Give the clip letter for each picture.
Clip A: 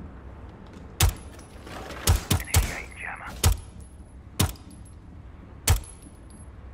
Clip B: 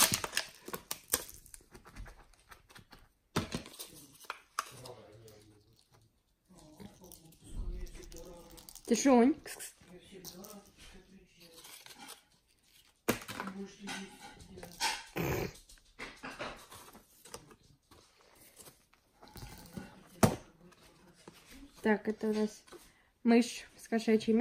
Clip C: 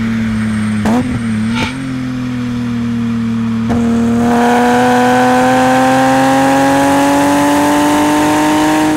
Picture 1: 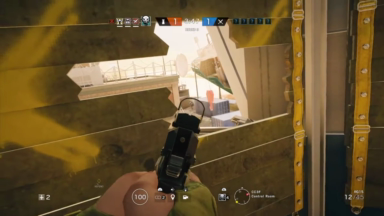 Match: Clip A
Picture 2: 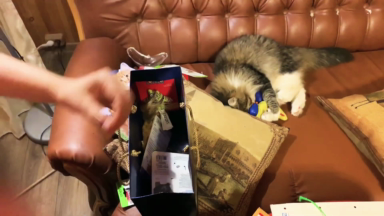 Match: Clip B